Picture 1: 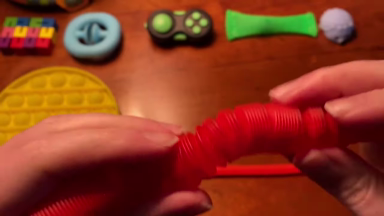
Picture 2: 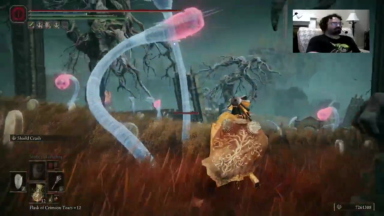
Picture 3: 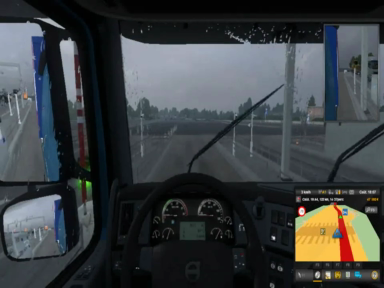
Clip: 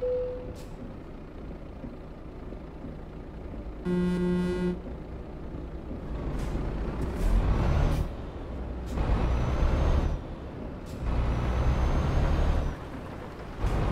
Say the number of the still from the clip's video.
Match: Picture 3